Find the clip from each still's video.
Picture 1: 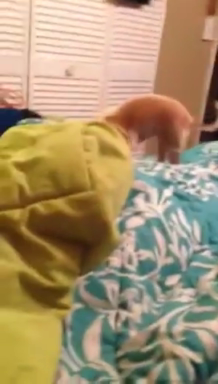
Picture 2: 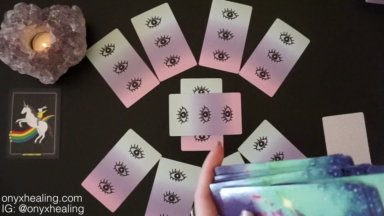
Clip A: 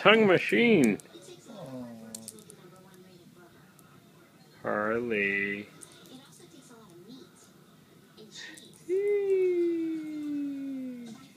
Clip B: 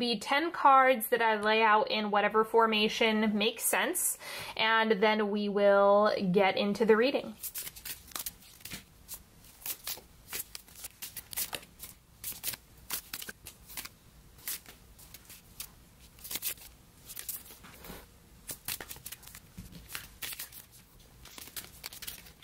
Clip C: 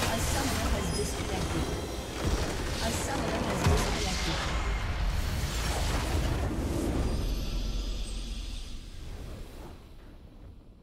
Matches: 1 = A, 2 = B